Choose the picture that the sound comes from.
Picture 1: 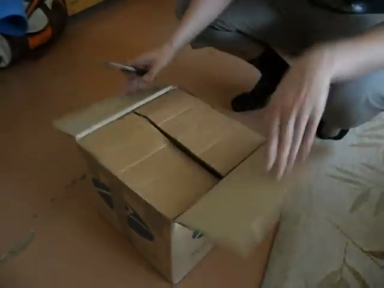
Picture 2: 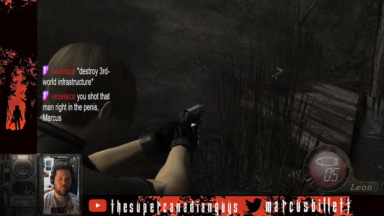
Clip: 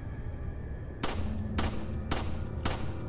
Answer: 2